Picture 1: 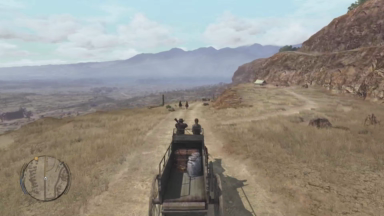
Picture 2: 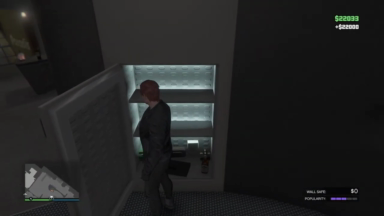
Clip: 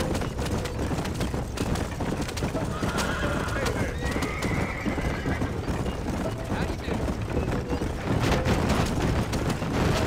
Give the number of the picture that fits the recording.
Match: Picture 1